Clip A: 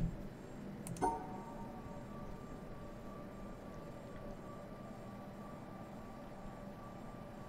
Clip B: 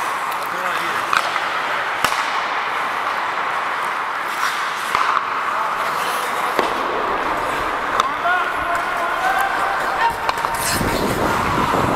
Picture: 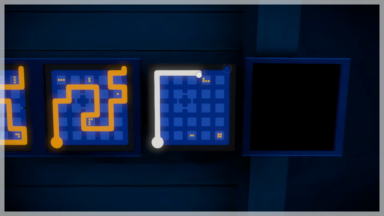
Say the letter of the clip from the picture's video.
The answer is A